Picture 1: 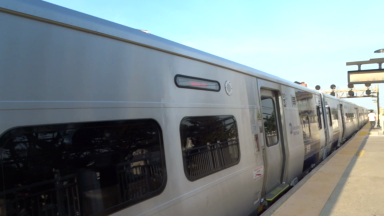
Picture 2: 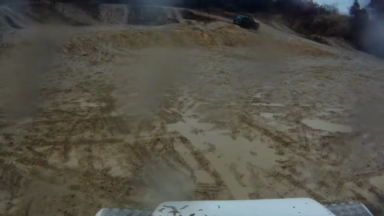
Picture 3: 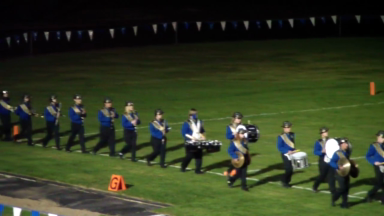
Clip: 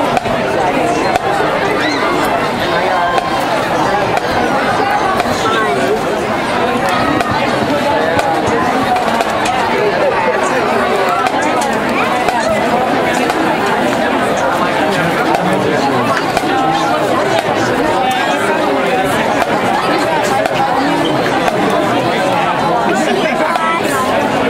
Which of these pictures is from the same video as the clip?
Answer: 3